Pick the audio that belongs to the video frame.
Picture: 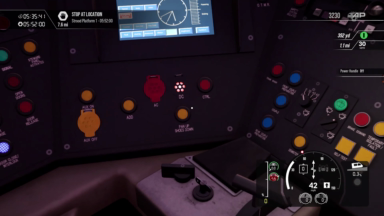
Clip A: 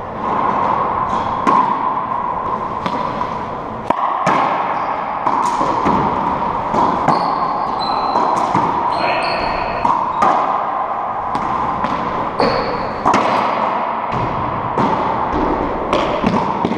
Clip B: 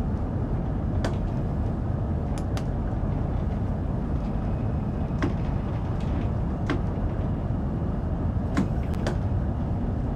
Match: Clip B